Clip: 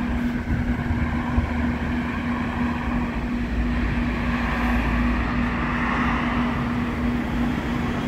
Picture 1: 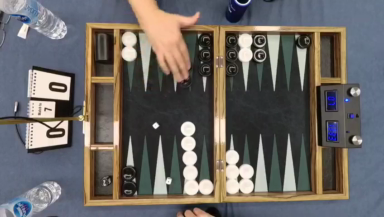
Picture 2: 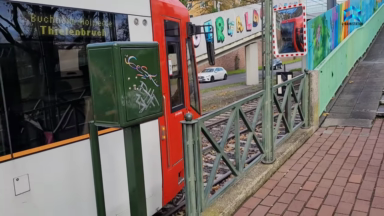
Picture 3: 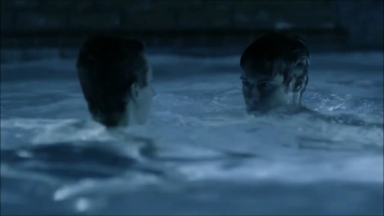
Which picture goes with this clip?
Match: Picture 2